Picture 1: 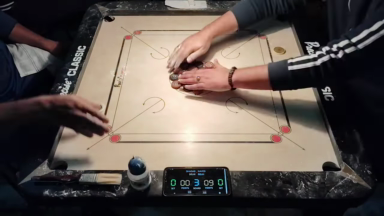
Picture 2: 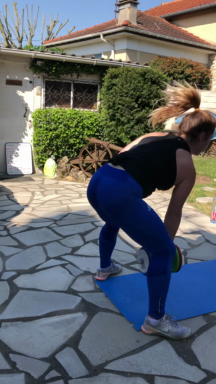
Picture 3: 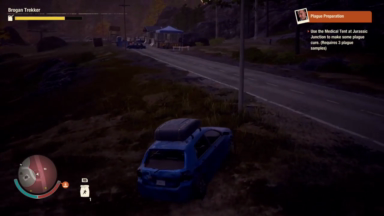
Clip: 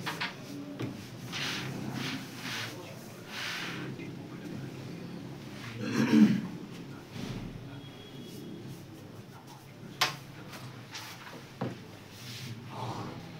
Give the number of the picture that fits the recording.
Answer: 1